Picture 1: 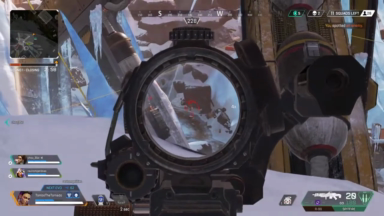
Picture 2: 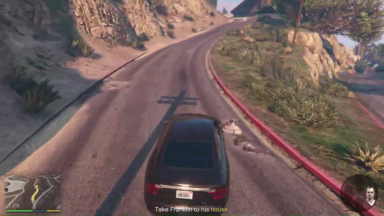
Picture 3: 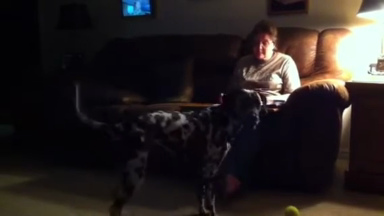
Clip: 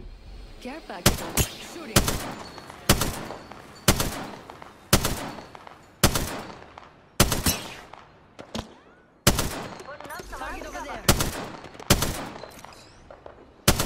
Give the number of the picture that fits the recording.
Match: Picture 1